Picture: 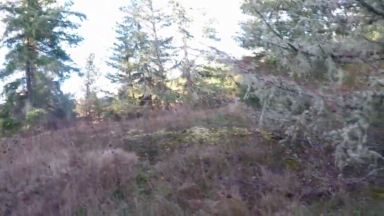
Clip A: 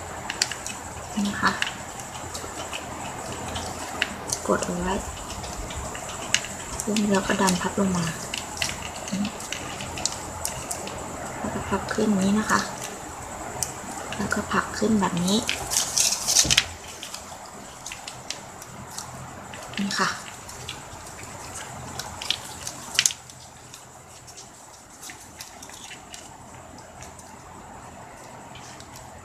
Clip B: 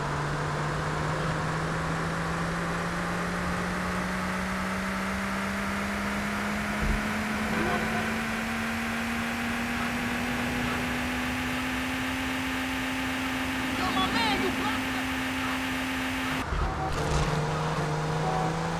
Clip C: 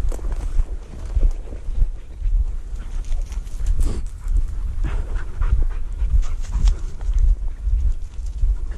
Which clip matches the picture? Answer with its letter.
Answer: C